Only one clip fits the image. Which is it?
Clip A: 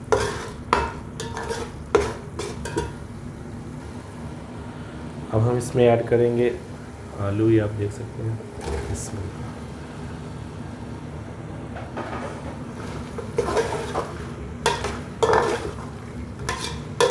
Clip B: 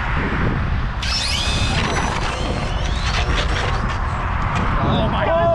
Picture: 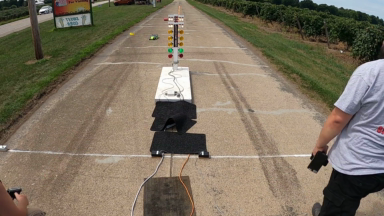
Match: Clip B